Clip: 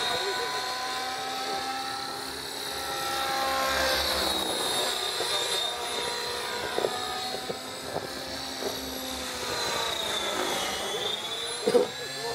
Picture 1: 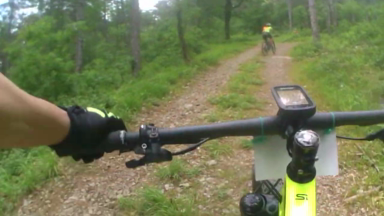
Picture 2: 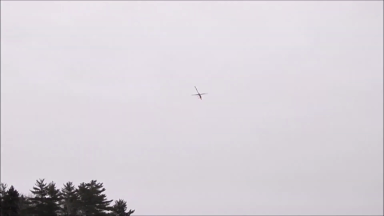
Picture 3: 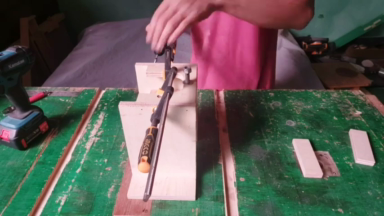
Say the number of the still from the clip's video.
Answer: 2